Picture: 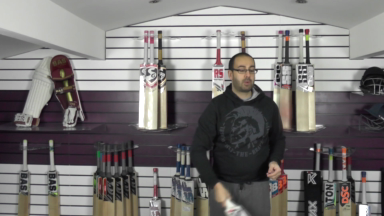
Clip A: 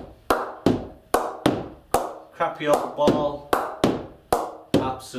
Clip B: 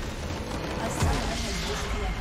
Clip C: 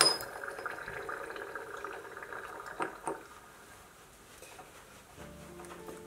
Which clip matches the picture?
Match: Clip A